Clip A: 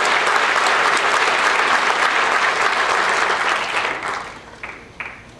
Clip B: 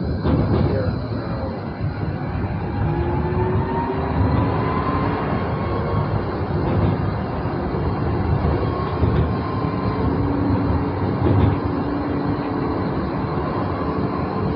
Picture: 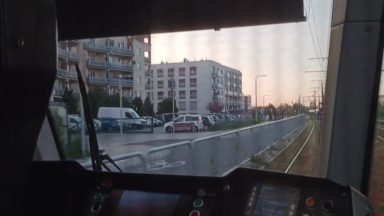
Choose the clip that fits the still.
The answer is B